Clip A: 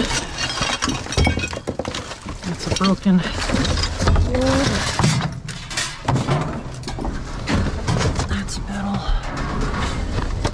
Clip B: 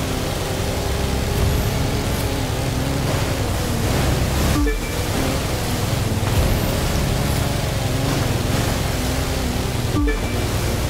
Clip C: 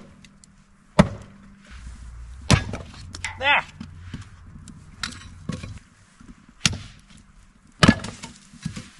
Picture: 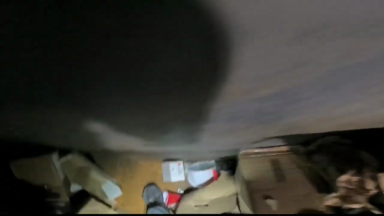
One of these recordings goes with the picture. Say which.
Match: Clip A